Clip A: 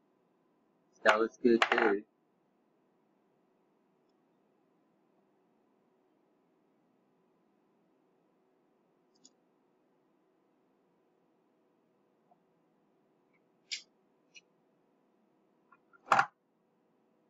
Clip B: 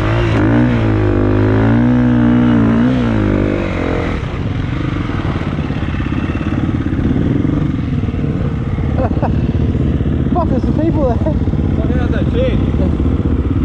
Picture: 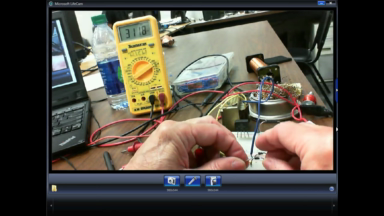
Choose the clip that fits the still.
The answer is A